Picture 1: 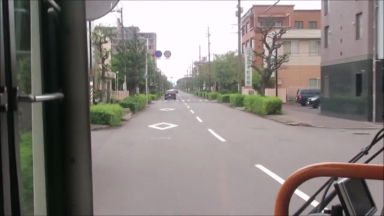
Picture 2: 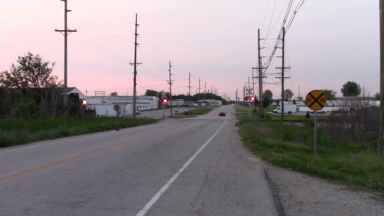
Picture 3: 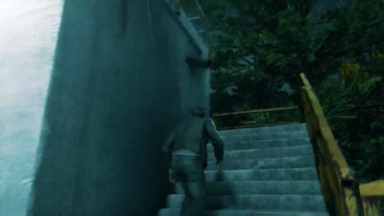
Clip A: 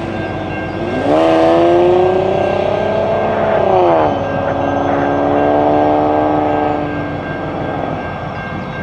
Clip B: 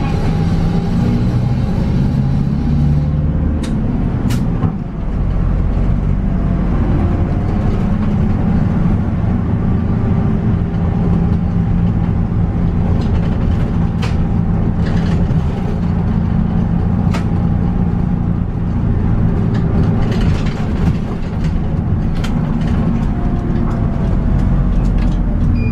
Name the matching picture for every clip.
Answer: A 2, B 1